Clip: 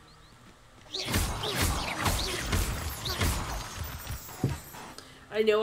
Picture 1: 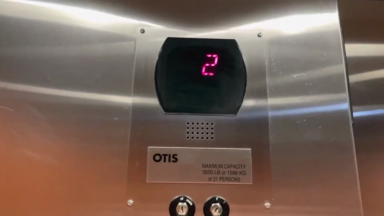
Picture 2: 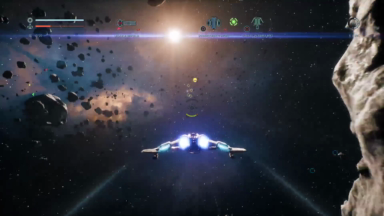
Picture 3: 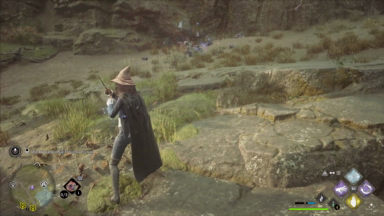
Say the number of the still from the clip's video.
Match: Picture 3